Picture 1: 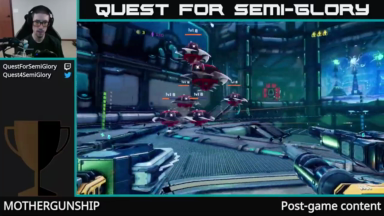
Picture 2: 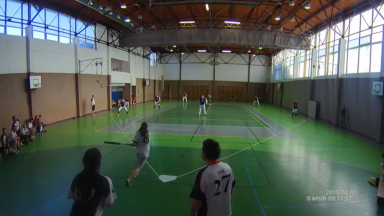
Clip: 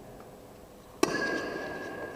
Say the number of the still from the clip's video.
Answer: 2